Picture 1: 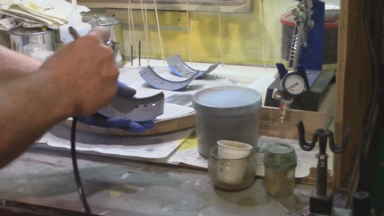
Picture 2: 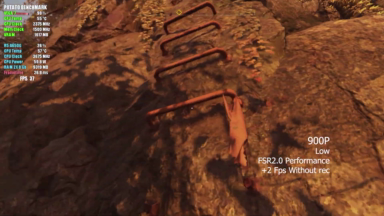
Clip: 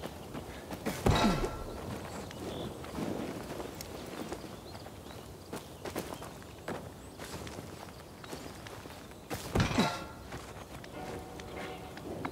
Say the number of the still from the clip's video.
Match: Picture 2